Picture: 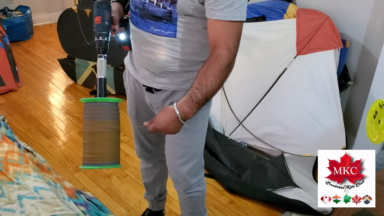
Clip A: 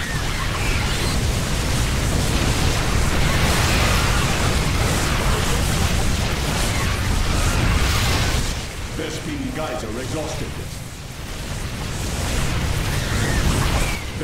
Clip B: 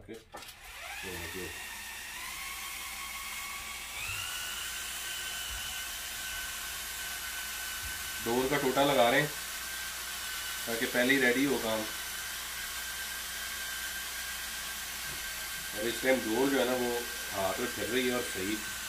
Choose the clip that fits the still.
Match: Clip B